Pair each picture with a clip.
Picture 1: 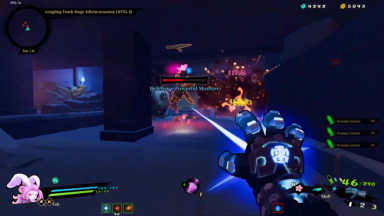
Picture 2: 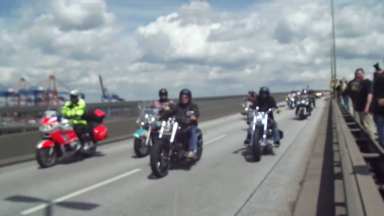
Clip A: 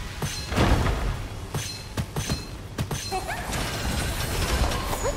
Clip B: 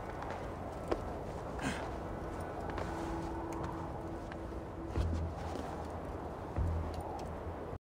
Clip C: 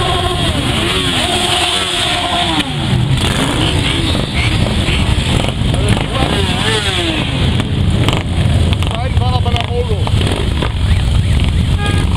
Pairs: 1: A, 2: C